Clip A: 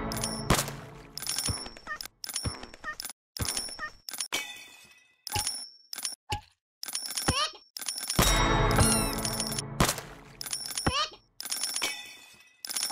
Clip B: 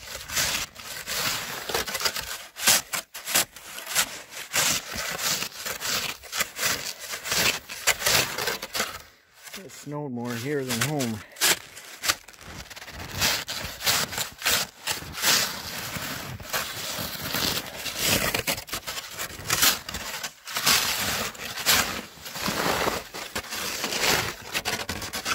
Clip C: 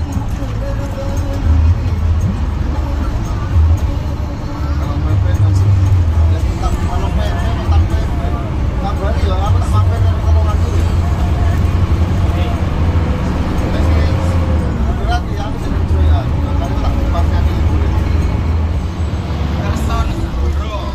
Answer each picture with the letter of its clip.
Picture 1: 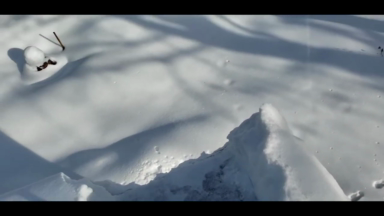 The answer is B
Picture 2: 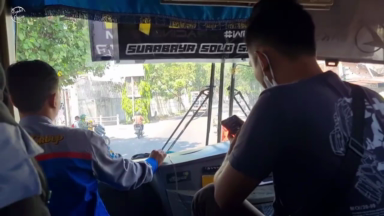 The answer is C